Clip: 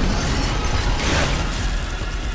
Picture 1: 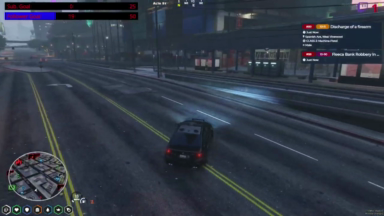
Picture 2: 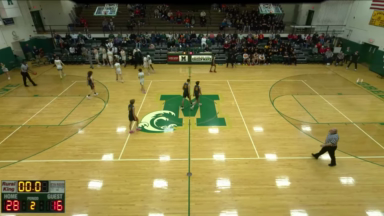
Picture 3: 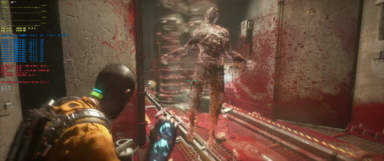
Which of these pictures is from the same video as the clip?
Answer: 3